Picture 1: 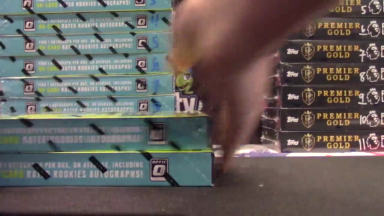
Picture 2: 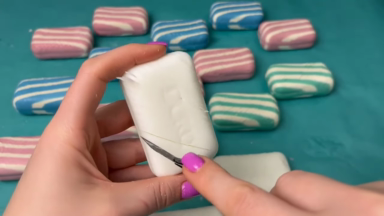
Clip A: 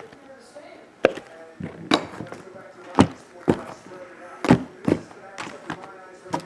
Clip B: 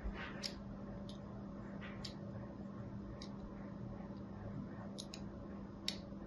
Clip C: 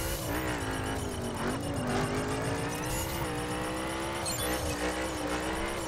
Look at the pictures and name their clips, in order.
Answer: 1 A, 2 B